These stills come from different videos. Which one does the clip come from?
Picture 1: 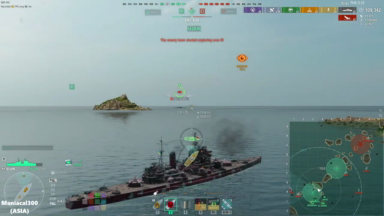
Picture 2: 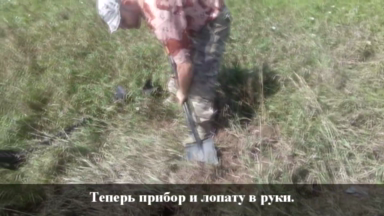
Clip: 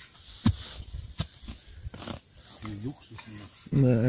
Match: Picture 2